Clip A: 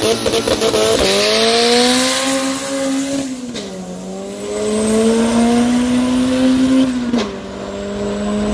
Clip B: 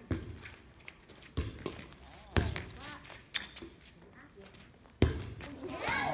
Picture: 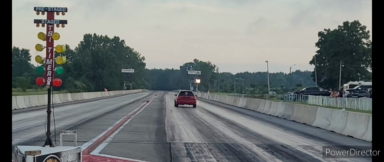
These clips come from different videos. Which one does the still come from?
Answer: A